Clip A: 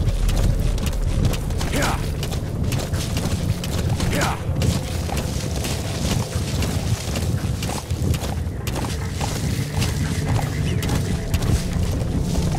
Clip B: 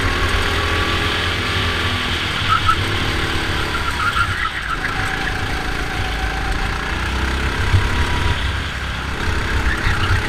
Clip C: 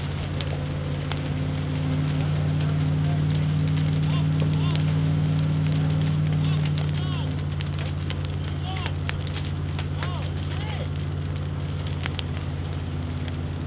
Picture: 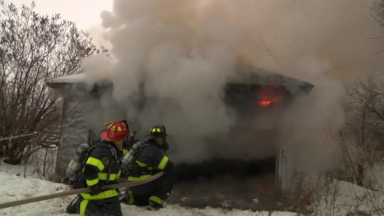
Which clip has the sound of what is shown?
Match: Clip C